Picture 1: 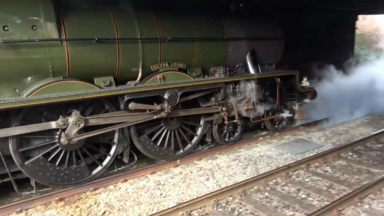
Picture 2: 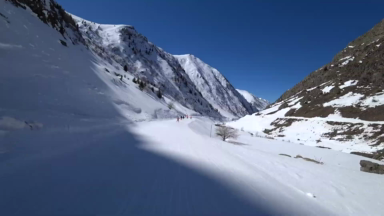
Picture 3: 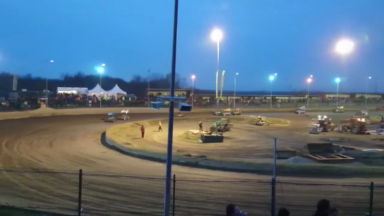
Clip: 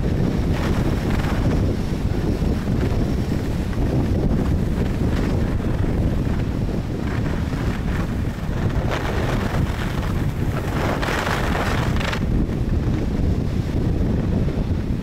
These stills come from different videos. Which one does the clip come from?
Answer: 2